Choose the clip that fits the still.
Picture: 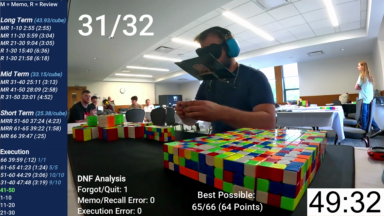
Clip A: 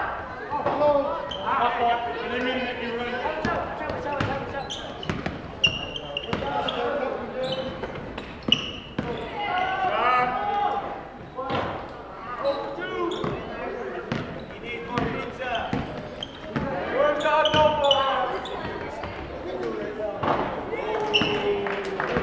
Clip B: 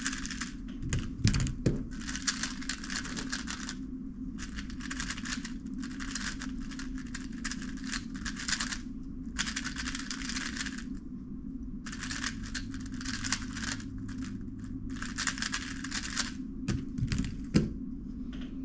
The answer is B